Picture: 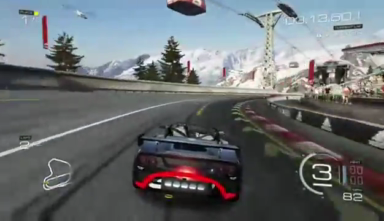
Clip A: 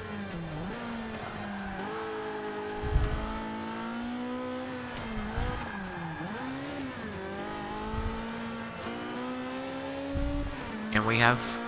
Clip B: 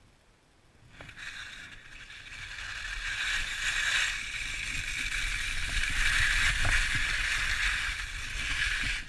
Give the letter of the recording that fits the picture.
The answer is A